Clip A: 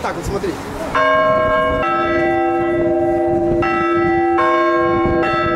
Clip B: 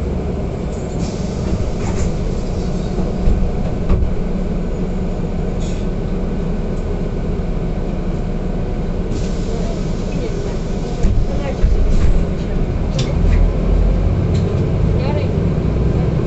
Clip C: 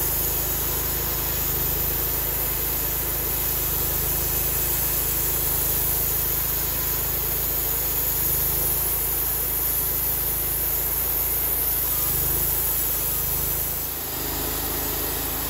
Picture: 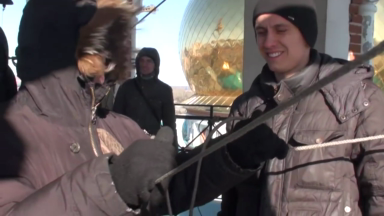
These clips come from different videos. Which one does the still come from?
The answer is A